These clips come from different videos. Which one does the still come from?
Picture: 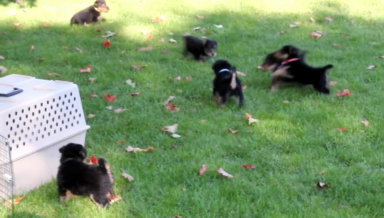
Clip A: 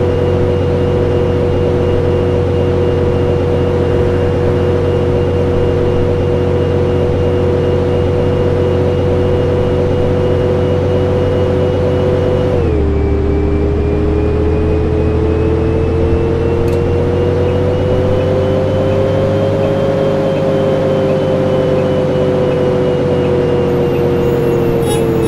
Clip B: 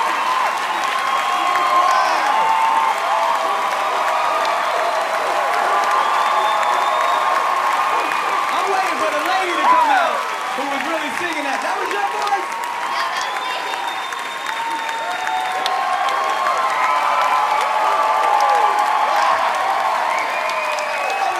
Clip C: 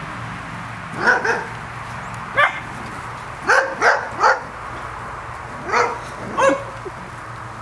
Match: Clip C